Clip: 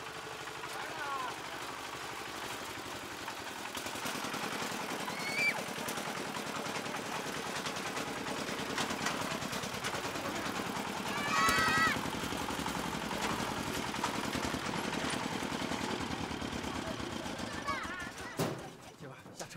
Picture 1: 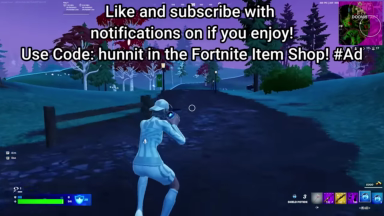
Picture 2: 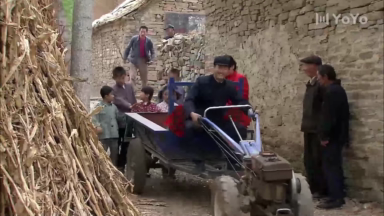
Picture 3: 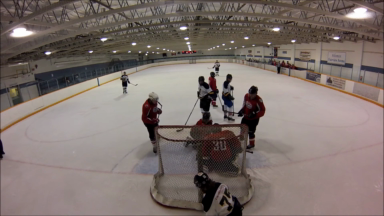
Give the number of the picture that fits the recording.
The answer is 2